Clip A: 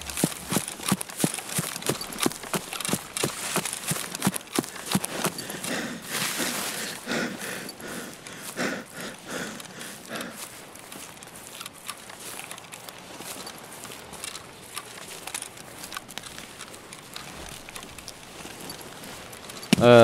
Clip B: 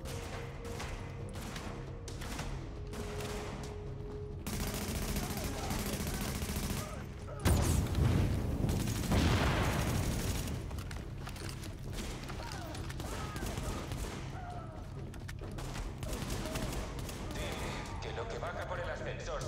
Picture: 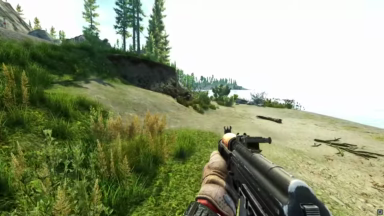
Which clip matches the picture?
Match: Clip A